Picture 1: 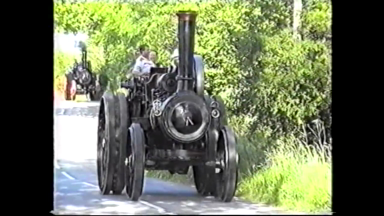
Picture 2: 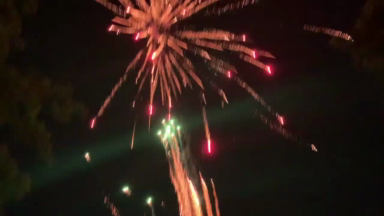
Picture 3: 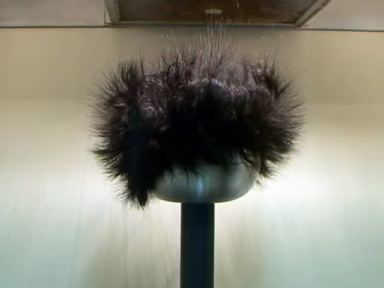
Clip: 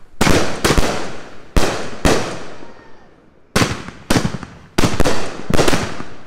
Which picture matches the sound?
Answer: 2